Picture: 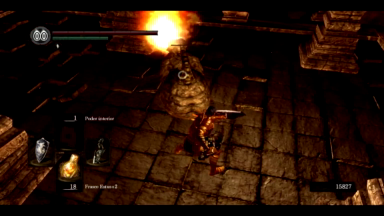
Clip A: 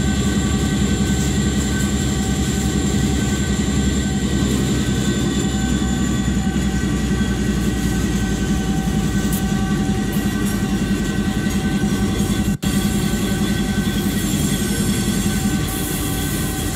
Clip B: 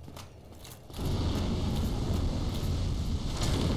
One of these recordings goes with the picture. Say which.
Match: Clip B